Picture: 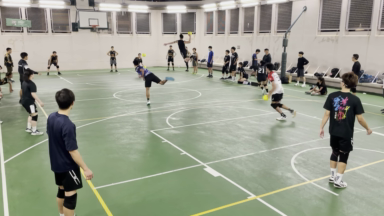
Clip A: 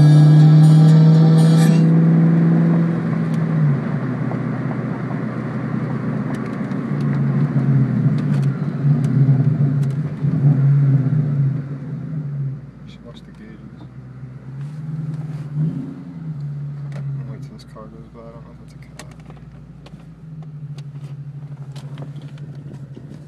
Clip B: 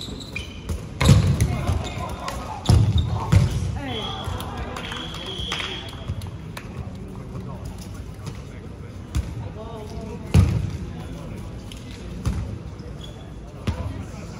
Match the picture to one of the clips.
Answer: B